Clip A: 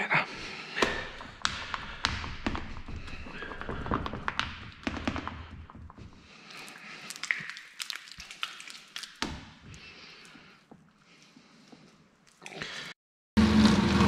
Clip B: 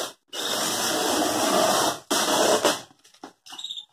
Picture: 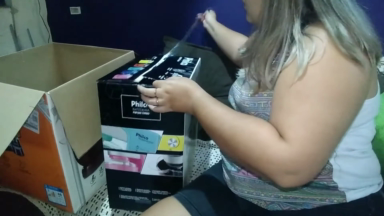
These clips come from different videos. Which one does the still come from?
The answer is B